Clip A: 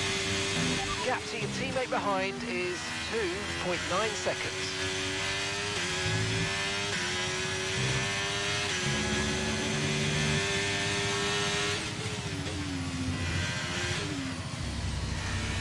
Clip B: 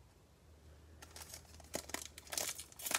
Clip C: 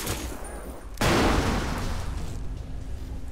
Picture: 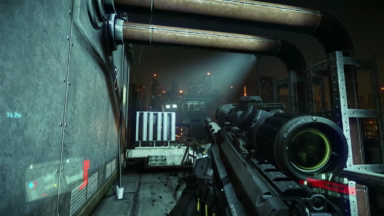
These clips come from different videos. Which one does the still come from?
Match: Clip C